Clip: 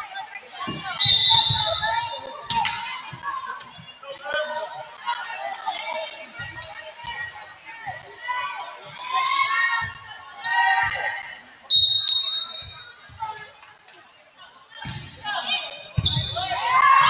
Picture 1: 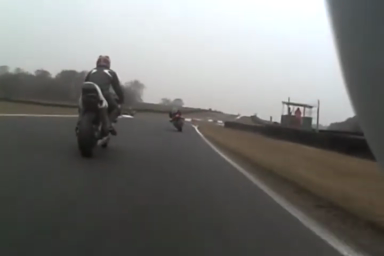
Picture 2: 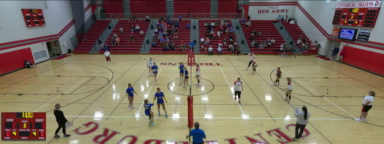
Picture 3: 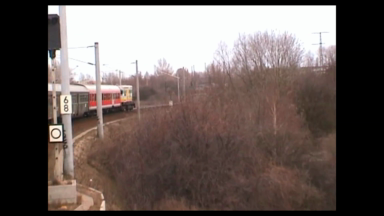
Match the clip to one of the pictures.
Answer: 2